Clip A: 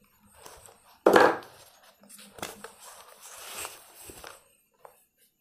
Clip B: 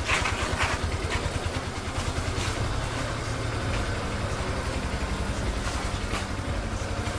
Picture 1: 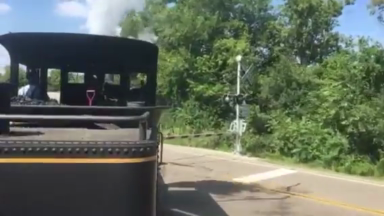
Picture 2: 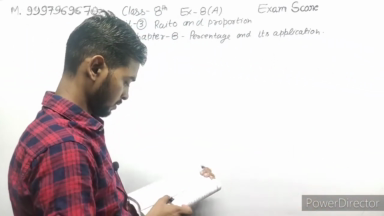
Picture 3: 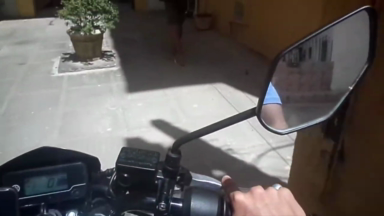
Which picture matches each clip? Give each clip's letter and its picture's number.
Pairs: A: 2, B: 3